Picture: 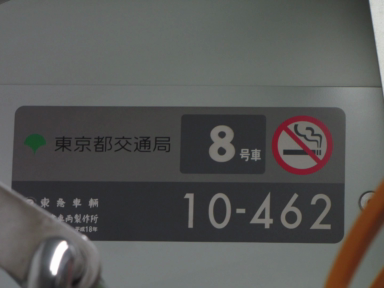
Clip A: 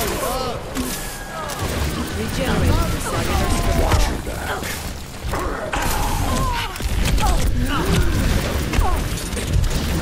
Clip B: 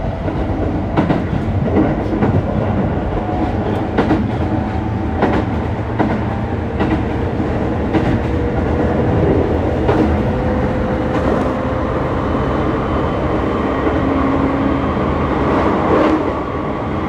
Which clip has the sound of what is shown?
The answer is B